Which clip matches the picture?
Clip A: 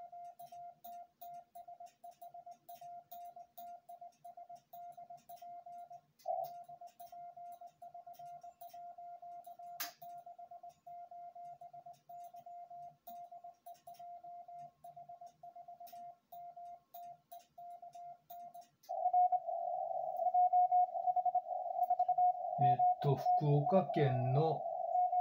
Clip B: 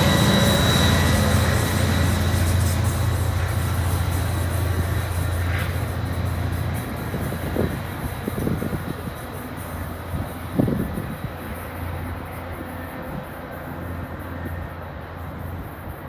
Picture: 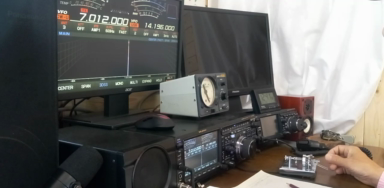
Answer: A